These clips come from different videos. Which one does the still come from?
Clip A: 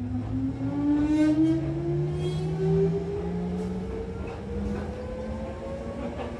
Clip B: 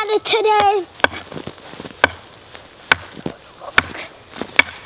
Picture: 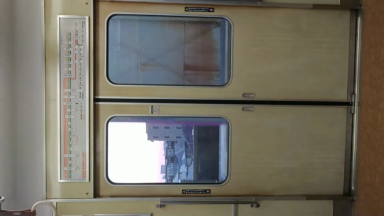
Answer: A